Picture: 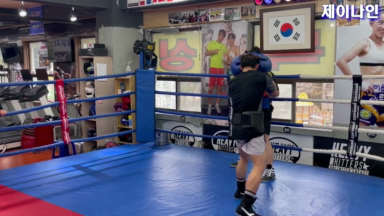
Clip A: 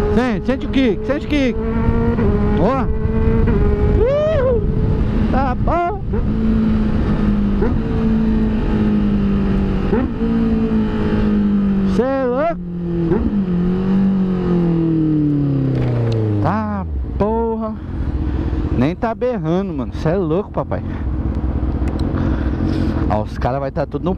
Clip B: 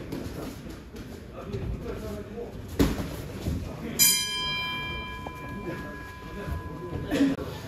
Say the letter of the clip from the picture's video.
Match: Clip B